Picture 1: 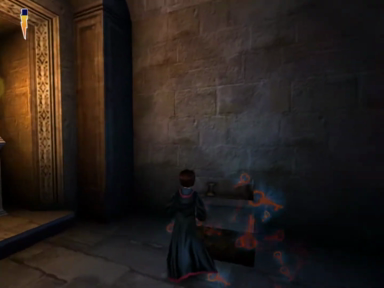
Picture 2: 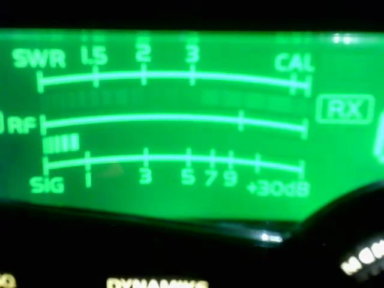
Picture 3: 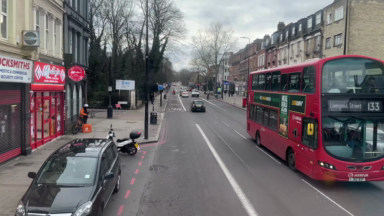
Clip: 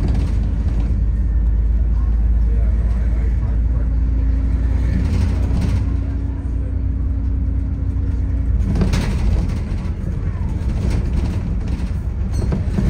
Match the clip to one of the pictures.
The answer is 3